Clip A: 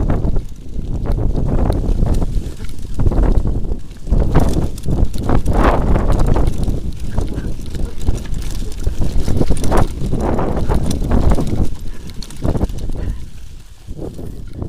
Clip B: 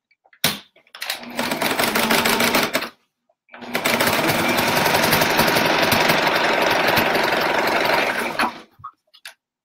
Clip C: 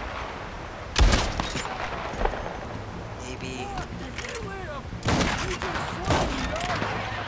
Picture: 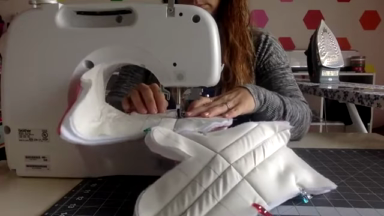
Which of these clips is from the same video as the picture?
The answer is B